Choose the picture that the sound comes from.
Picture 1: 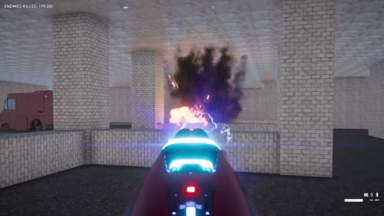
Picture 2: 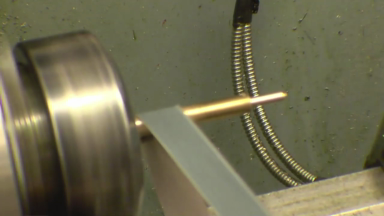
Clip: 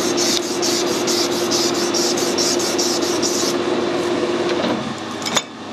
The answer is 2